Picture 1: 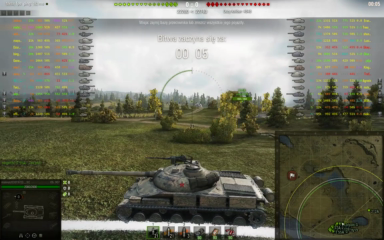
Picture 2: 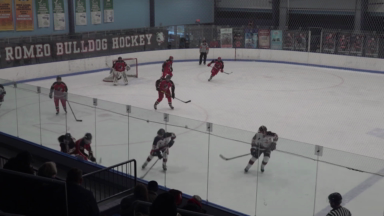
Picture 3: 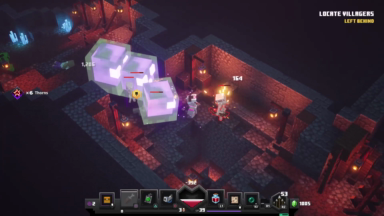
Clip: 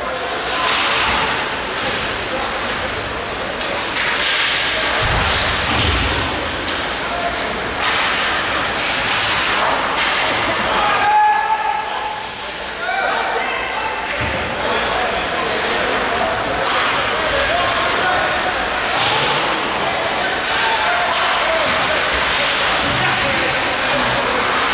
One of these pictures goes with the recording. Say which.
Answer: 2